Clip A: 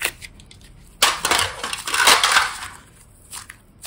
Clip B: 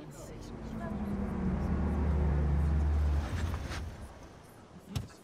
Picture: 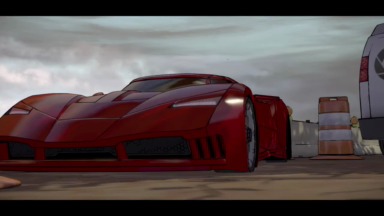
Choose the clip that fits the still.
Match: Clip B